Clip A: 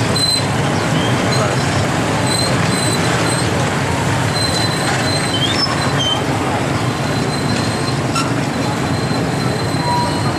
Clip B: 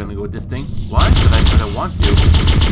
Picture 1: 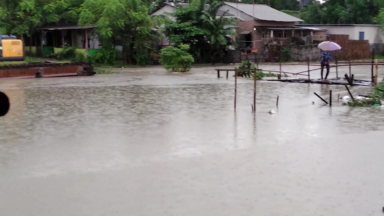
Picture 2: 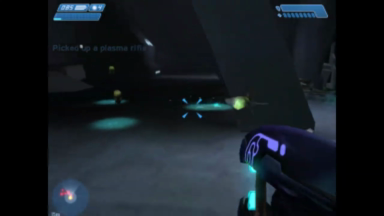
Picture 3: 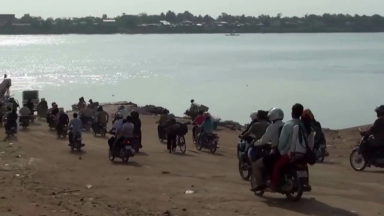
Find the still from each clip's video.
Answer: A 3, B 2